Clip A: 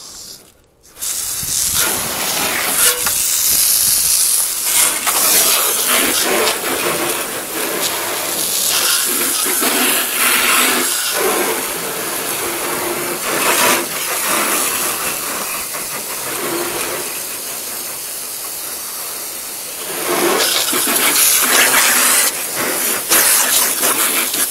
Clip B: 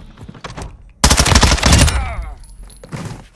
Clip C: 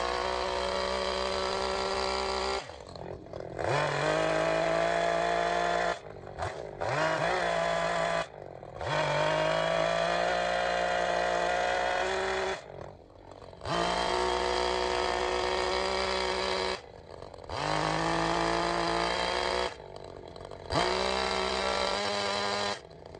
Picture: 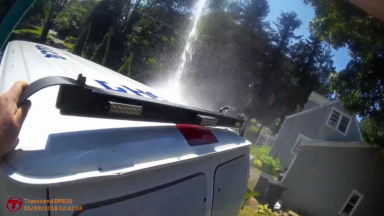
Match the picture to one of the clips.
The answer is A